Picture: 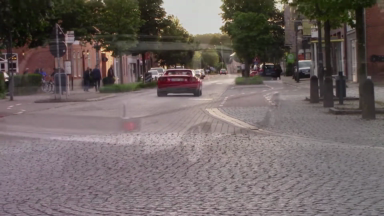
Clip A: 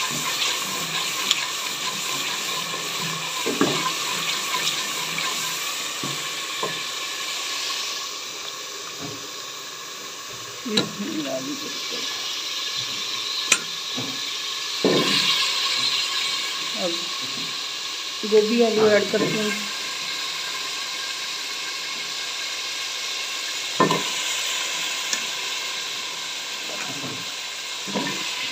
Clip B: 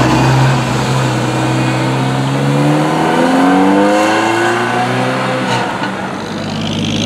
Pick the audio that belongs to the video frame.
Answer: B